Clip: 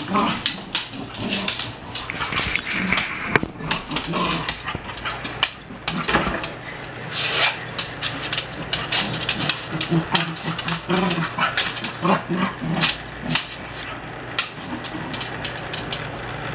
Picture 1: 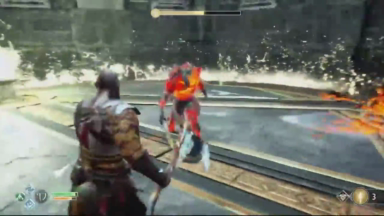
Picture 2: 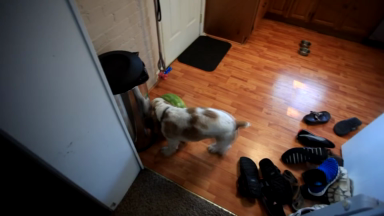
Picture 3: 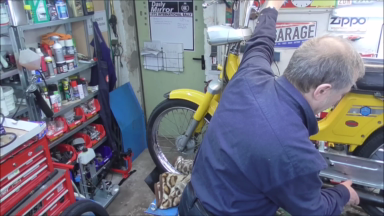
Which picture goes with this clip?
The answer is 2